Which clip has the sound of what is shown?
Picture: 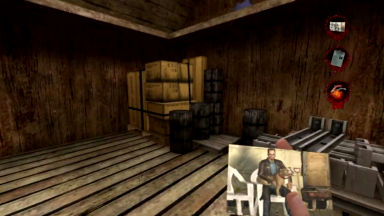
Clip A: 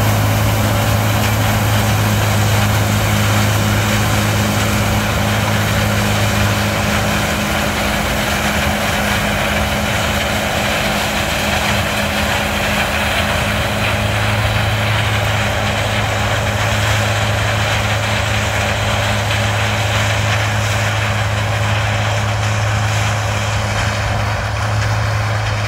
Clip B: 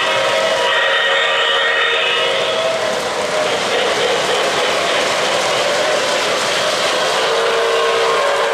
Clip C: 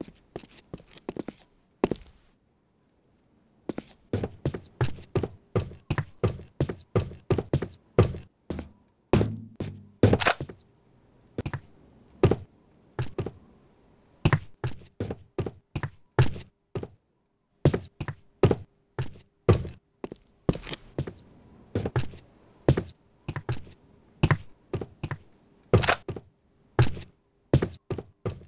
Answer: C